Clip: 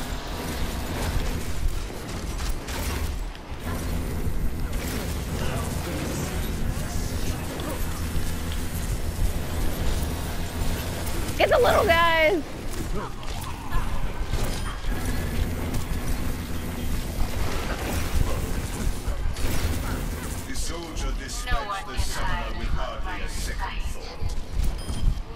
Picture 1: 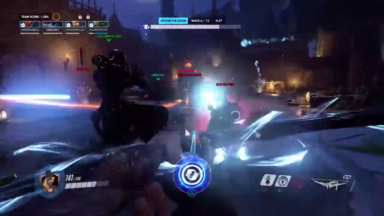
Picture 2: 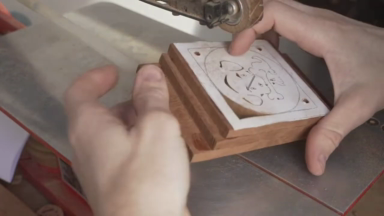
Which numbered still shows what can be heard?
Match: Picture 1